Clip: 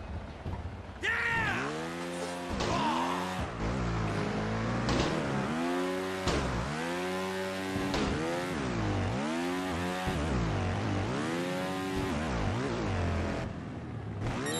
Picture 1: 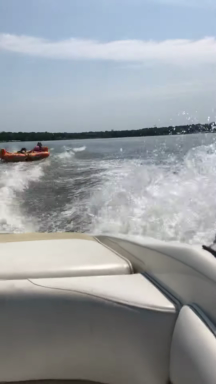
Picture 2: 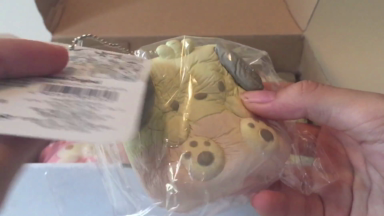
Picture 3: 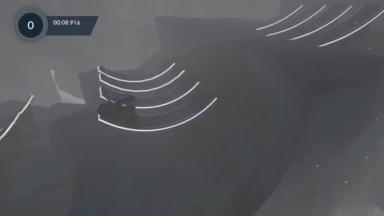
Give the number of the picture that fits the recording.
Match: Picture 3